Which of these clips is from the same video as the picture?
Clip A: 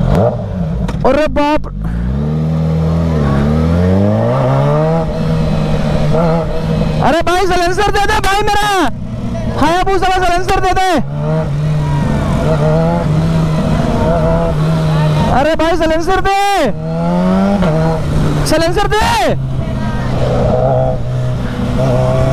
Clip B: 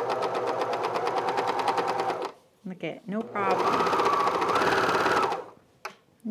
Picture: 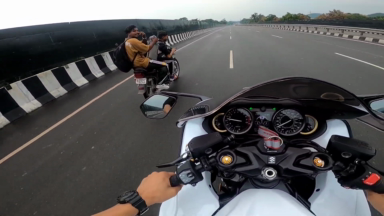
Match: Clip A